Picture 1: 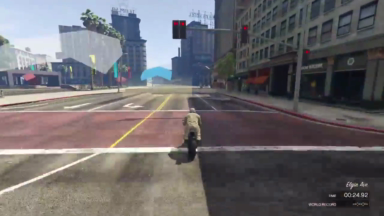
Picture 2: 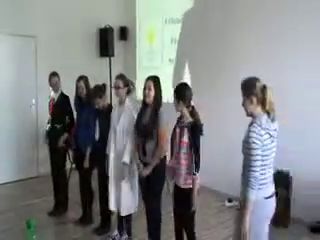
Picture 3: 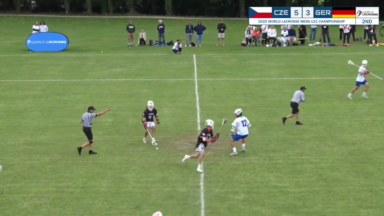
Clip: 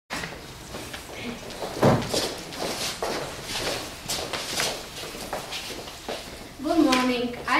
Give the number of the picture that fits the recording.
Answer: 2